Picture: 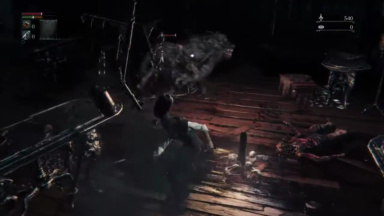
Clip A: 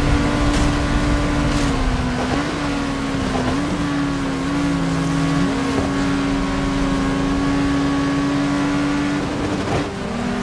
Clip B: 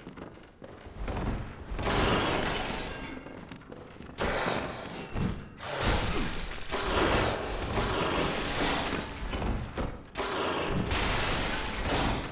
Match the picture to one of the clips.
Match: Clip B